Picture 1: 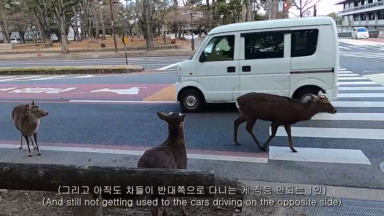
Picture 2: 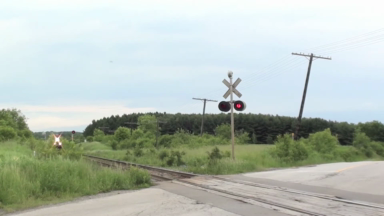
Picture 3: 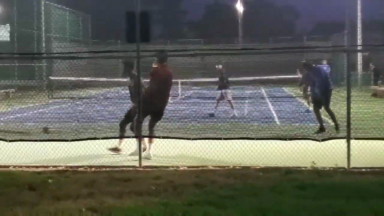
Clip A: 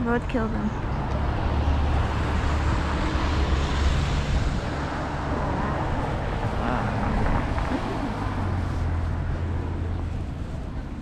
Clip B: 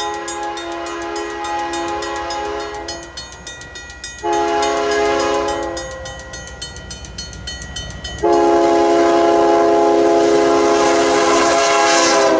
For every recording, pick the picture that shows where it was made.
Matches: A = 1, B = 2